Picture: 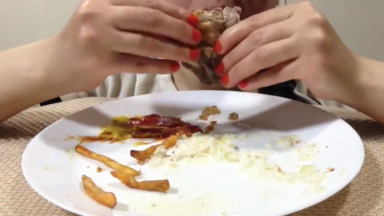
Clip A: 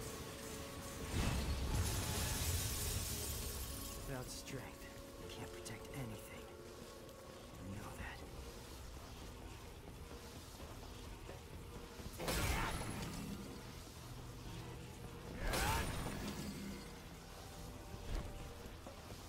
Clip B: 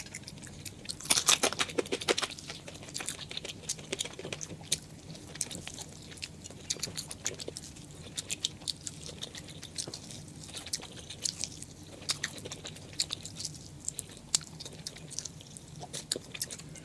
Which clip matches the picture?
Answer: B